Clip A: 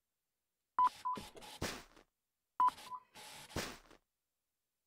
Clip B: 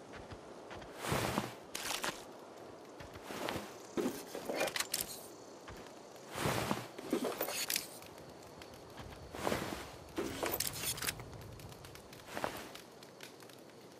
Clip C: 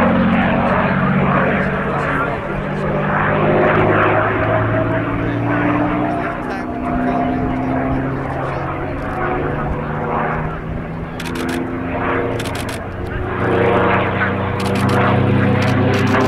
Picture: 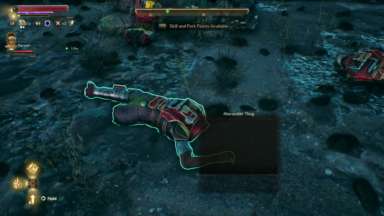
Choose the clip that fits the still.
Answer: B